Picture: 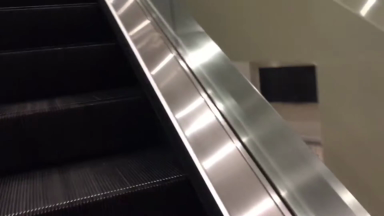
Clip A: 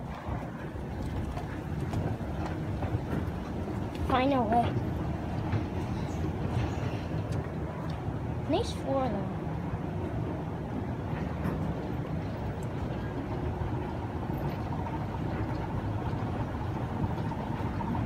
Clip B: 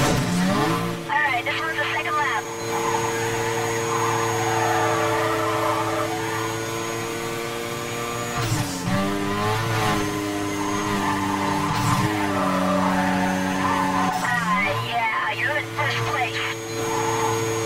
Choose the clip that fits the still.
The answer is A